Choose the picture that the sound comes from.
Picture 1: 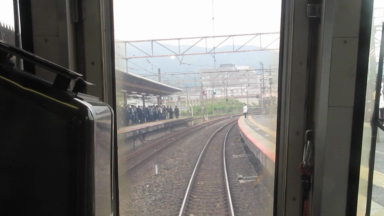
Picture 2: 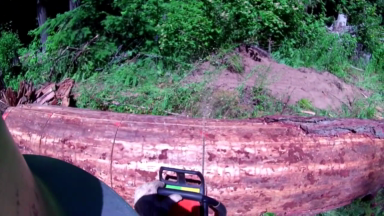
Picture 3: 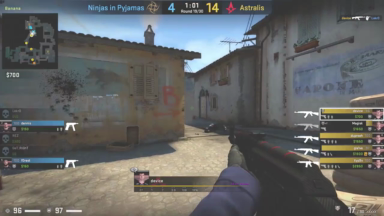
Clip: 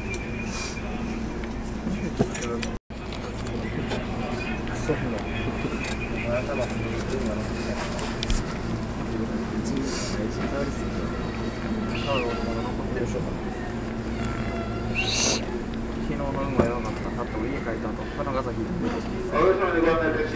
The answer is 1